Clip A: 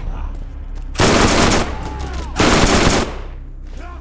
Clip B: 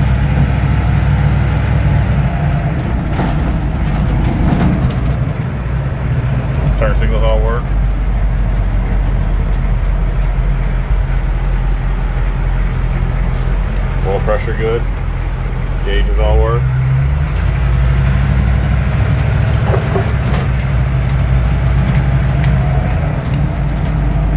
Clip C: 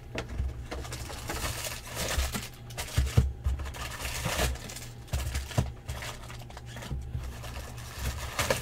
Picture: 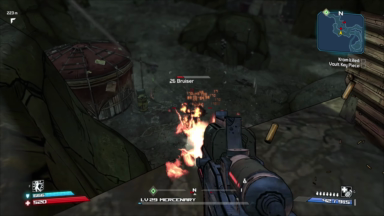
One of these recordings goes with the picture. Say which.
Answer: A